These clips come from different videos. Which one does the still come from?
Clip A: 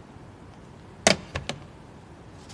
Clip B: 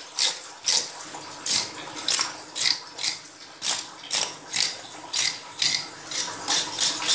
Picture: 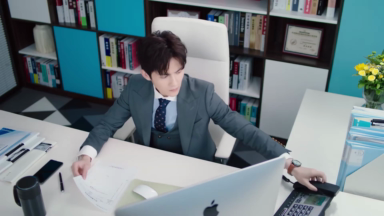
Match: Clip A